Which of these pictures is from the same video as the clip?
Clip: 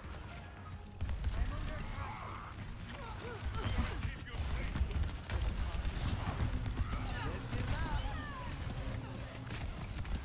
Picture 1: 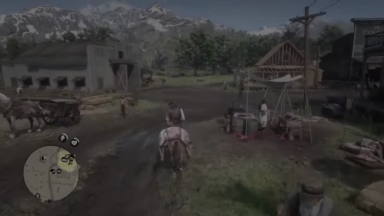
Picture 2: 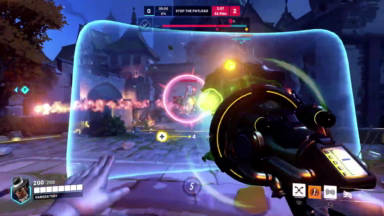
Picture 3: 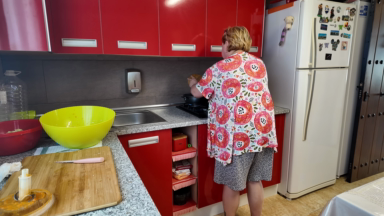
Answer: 2